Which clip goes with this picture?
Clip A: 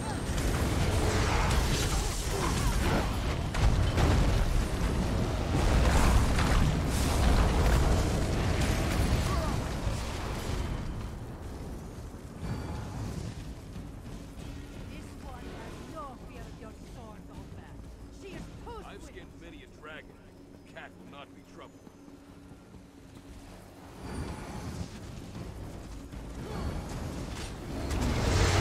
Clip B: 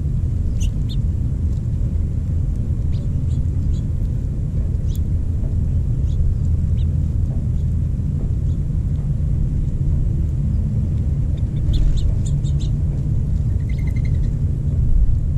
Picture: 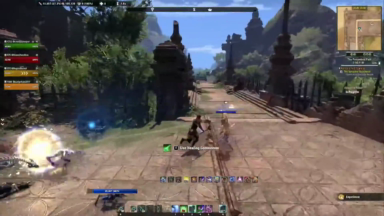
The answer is A